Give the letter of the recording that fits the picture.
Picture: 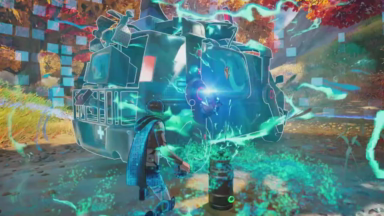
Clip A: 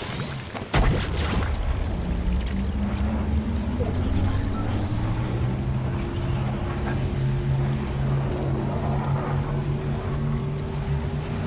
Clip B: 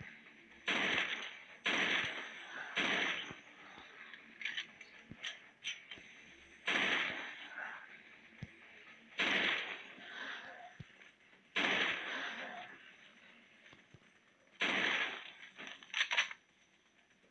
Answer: A